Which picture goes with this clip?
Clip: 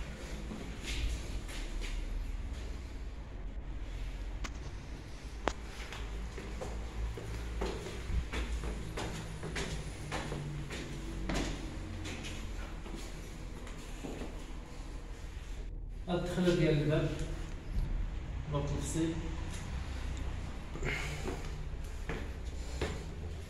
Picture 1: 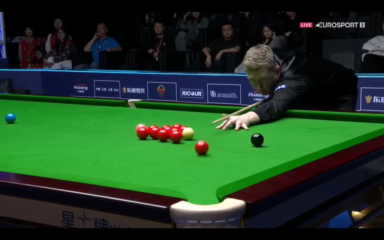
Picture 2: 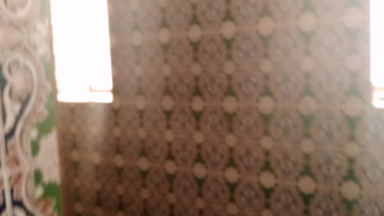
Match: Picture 2